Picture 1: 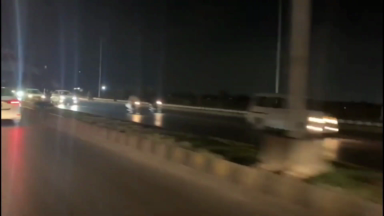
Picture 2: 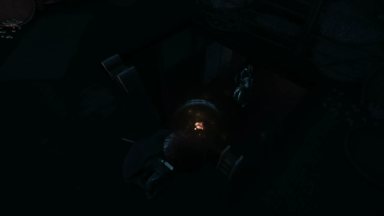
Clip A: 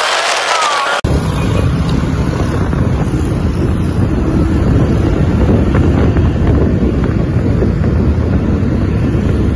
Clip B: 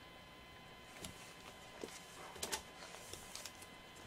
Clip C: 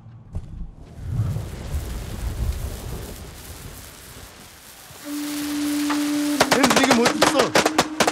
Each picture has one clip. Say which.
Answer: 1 A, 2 C